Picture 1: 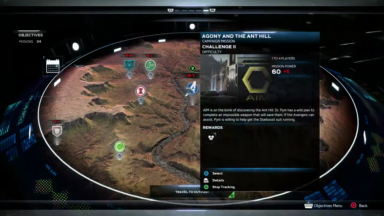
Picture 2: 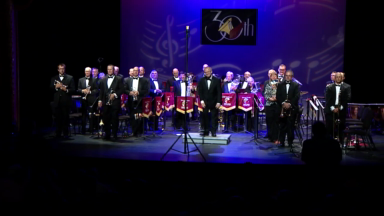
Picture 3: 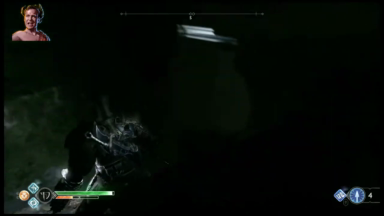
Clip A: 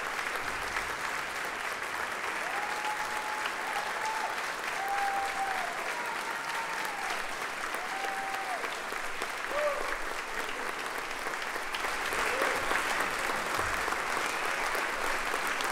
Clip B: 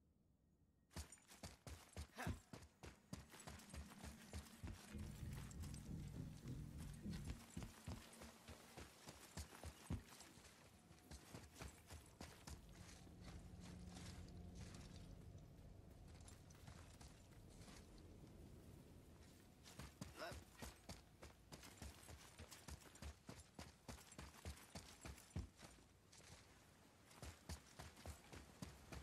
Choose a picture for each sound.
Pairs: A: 2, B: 3